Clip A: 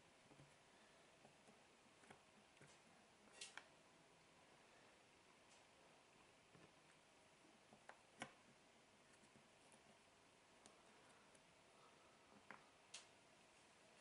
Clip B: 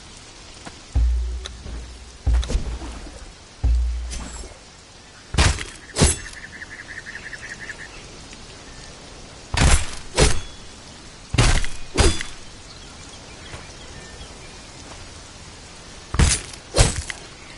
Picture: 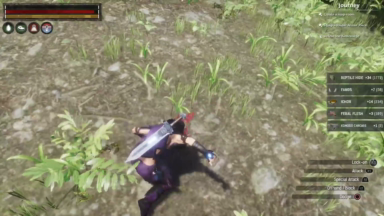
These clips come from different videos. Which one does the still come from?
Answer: B